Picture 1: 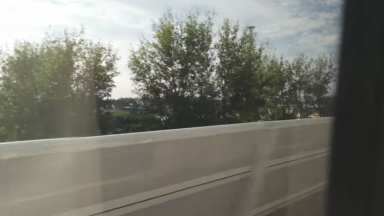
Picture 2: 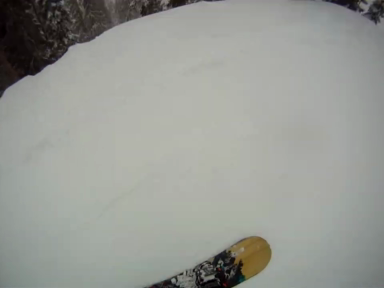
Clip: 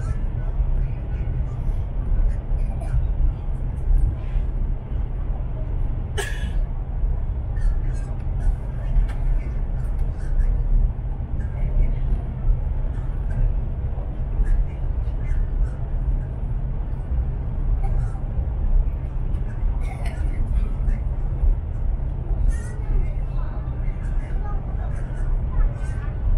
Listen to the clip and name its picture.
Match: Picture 1